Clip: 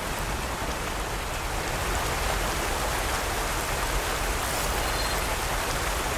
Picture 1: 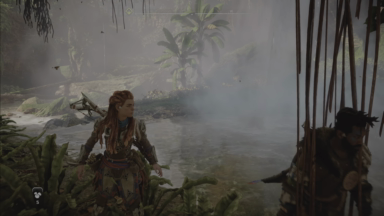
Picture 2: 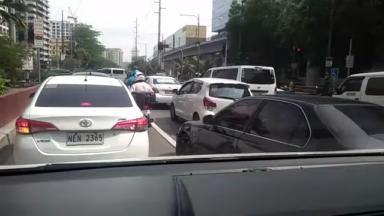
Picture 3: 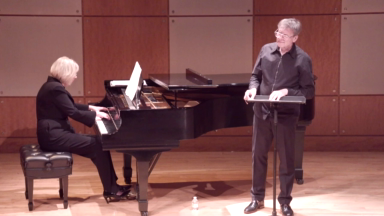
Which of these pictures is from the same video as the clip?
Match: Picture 1